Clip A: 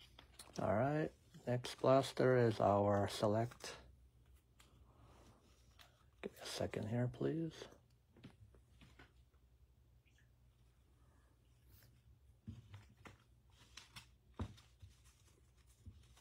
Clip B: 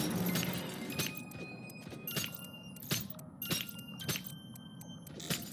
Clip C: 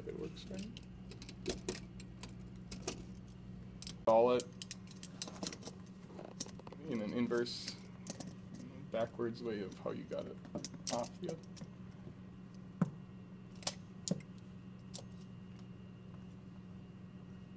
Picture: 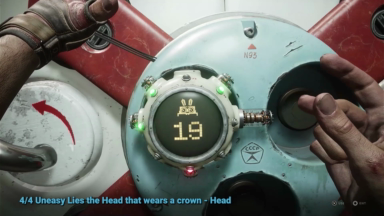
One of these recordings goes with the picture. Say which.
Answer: B